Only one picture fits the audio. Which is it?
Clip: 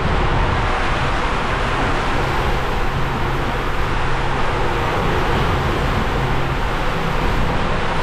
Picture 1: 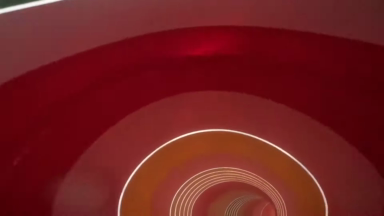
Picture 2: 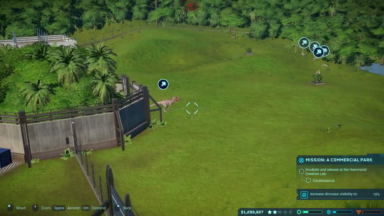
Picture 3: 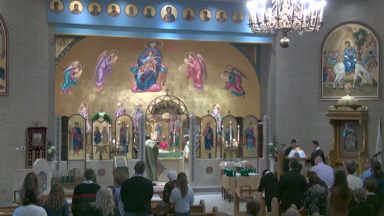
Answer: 1